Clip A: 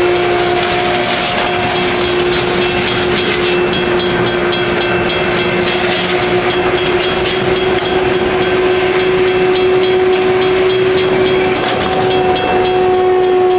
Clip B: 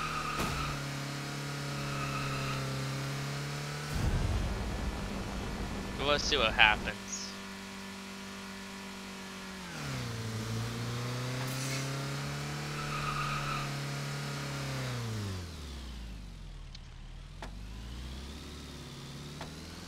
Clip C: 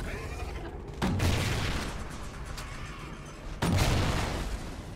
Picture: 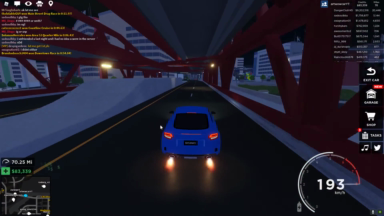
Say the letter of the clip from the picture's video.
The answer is B